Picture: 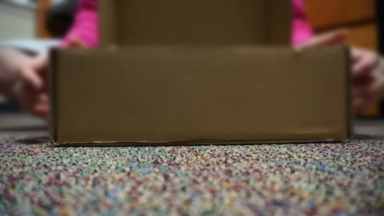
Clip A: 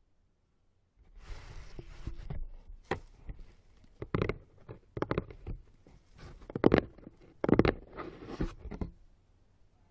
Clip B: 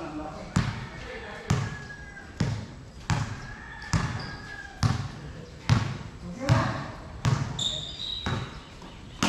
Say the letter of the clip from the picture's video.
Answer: A